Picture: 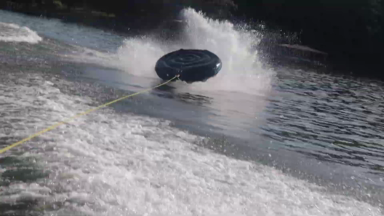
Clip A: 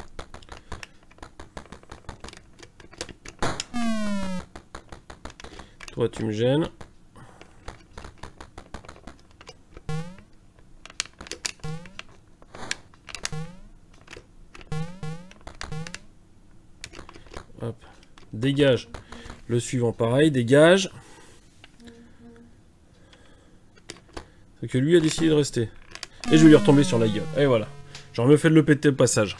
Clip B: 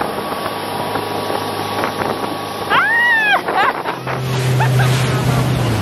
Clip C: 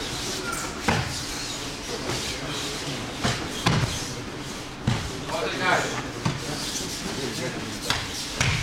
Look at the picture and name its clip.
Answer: B